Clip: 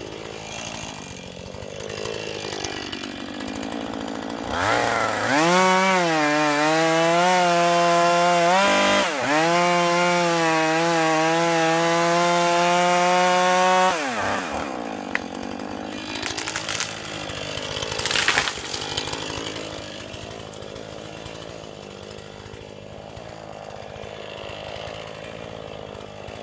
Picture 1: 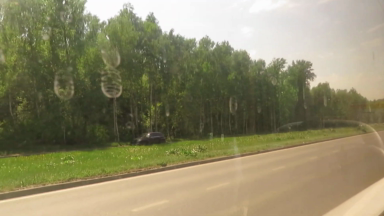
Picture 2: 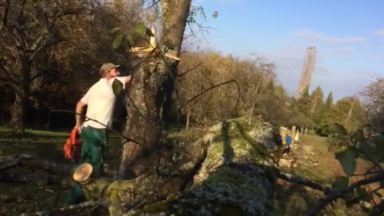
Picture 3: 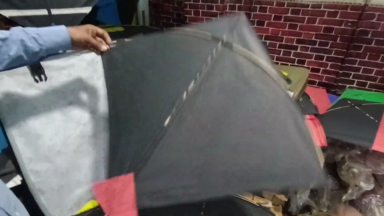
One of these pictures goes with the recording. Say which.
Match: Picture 2